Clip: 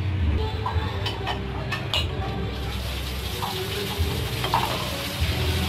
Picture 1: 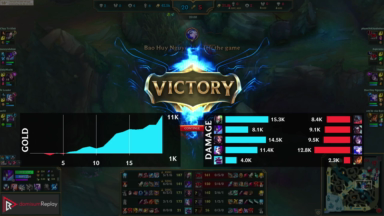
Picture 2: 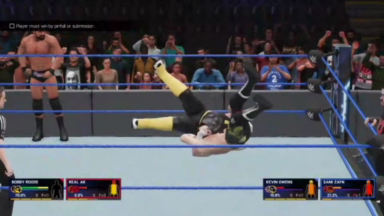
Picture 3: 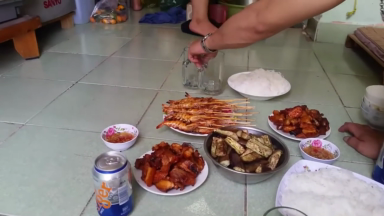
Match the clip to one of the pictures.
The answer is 3